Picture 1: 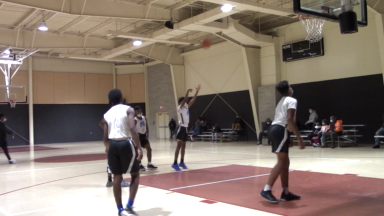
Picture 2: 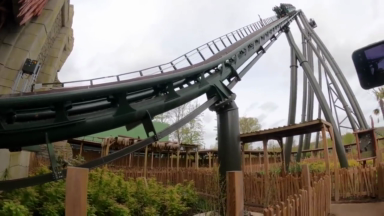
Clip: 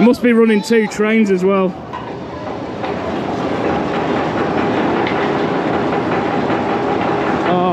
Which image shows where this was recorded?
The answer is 2